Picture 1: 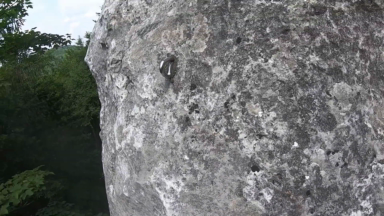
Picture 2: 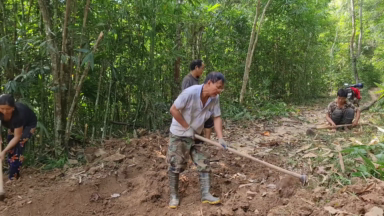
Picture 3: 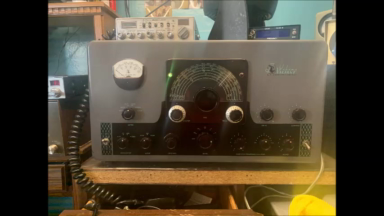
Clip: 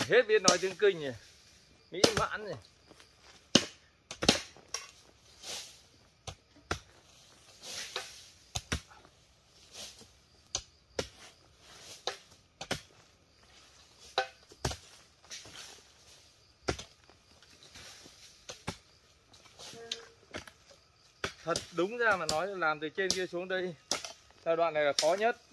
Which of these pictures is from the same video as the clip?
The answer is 2